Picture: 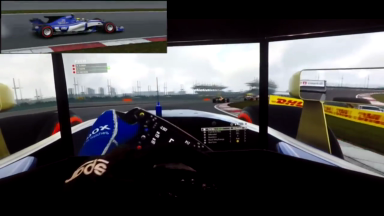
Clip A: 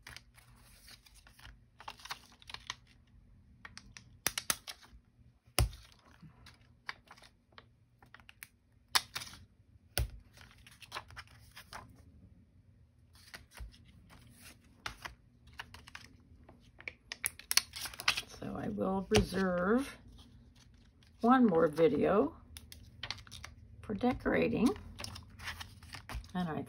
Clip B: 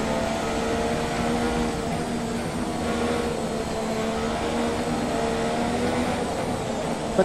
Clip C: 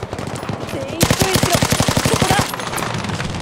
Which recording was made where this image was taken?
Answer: B